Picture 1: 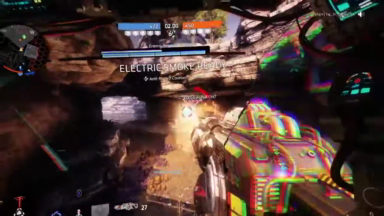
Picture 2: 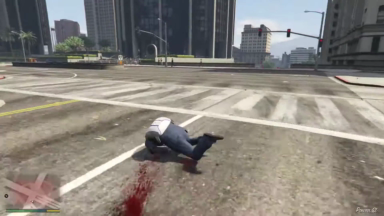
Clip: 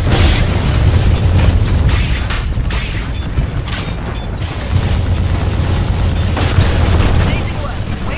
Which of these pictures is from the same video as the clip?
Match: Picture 1